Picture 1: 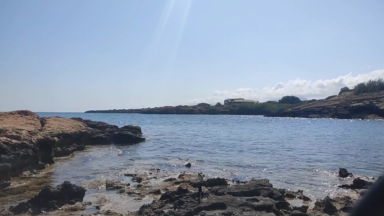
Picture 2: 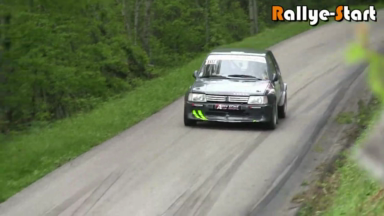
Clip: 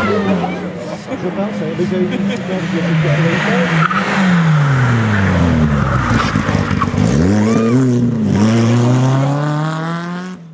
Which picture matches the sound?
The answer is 2